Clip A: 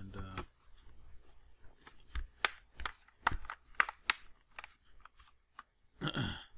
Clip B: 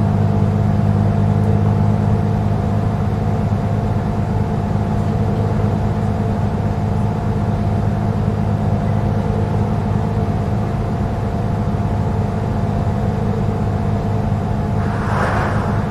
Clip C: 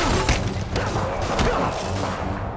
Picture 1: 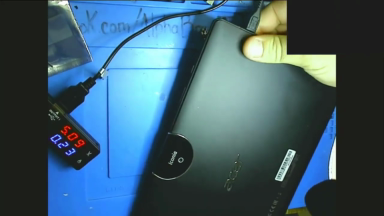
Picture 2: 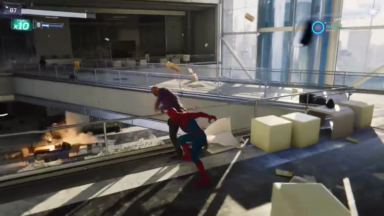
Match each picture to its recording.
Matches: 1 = A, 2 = C